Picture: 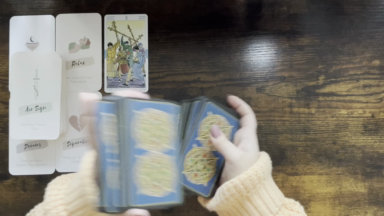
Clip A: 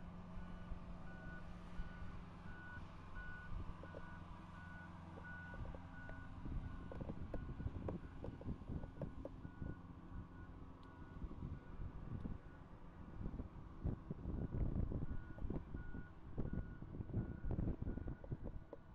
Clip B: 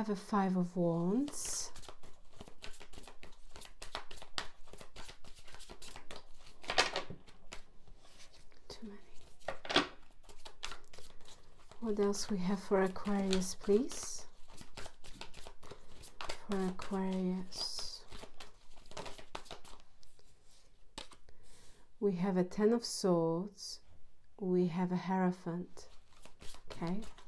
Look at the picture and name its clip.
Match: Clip B